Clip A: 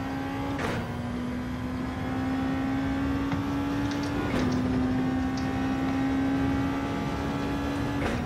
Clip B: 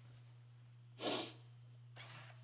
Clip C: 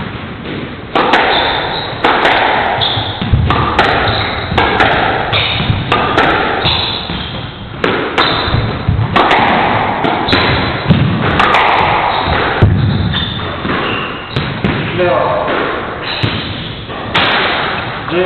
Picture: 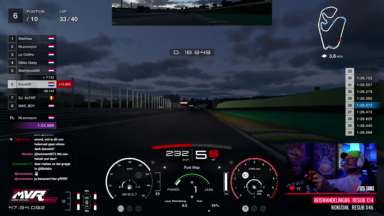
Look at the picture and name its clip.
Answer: A